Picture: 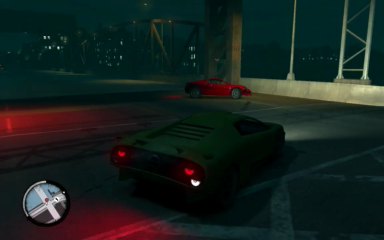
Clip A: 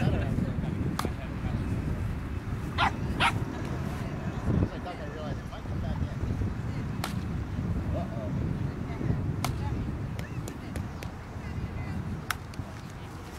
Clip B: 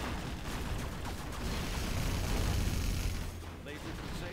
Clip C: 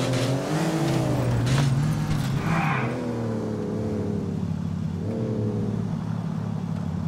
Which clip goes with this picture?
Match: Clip C